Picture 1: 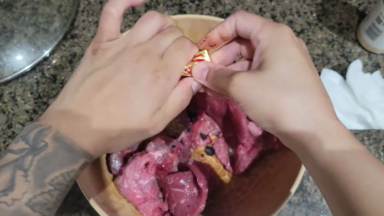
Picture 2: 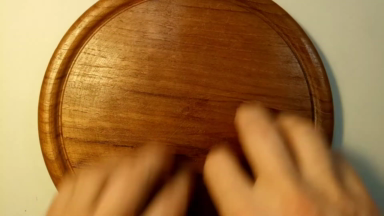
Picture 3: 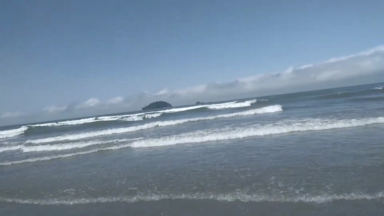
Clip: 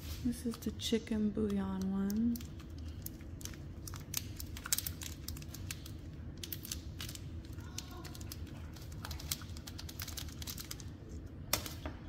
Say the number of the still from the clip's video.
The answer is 1